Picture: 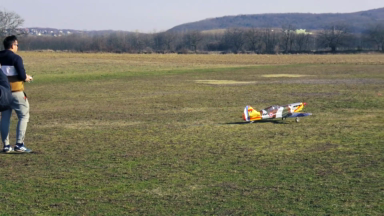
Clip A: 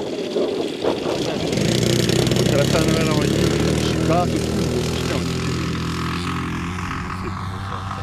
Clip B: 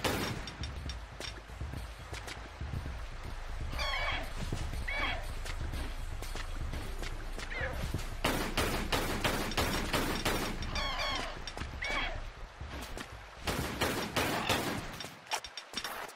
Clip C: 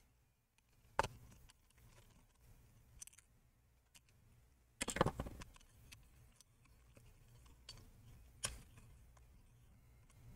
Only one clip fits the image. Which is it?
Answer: A